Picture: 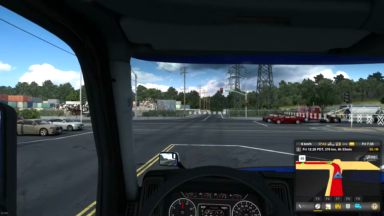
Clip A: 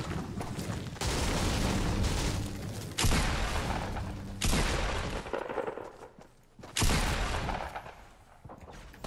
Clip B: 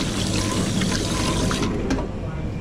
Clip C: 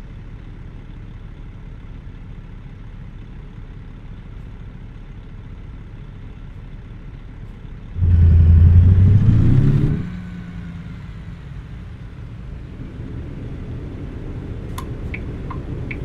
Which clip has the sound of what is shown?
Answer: C